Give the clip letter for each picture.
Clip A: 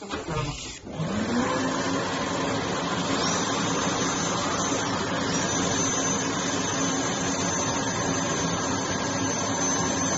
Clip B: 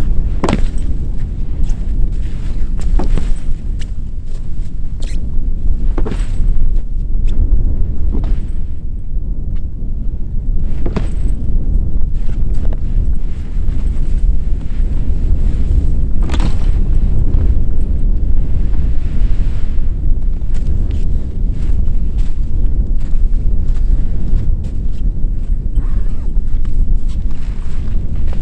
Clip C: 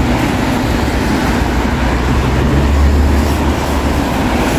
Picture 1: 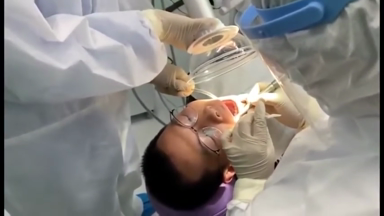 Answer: A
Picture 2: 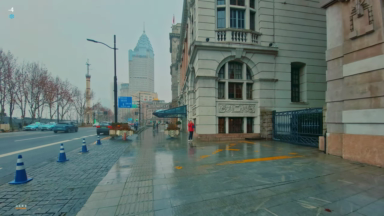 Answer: C